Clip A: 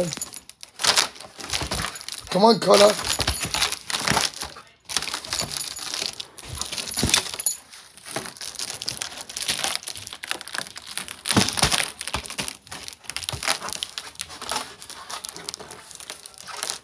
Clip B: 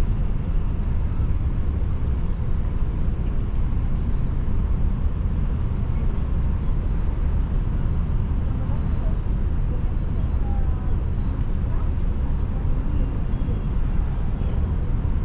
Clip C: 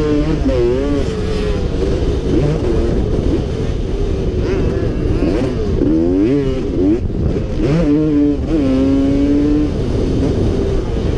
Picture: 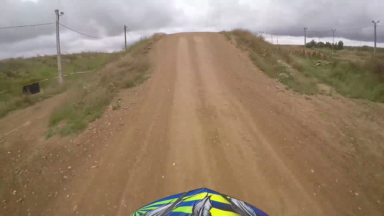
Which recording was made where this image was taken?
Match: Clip C